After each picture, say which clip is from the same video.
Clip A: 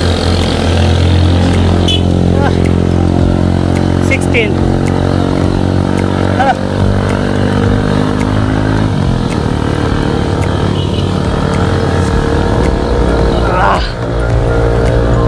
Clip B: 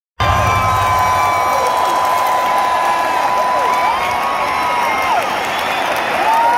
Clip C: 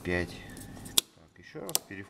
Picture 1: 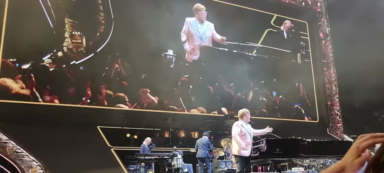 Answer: B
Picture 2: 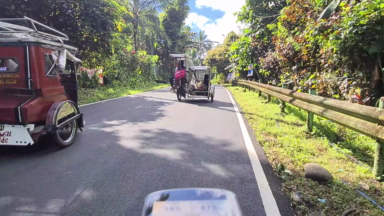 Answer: A